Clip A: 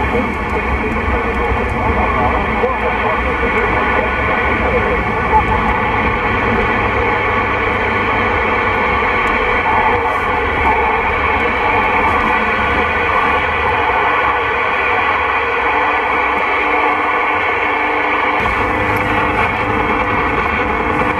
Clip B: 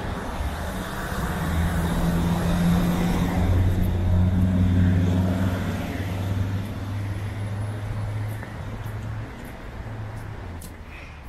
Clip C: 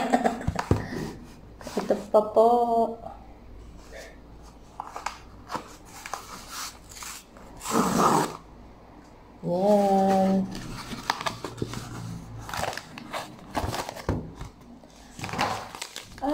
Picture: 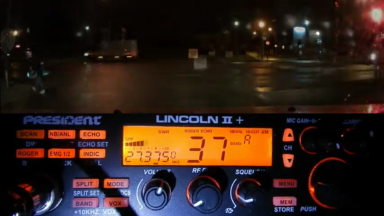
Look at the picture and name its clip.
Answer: A